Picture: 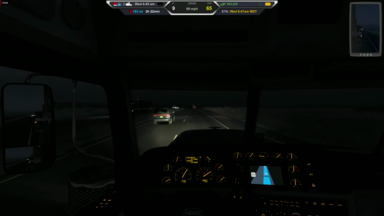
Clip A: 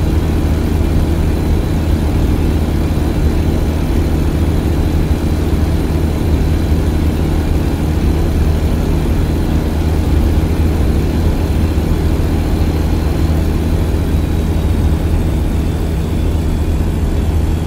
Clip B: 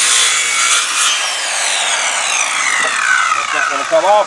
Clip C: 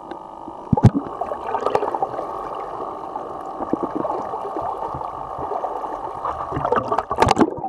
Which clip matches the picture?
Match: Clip A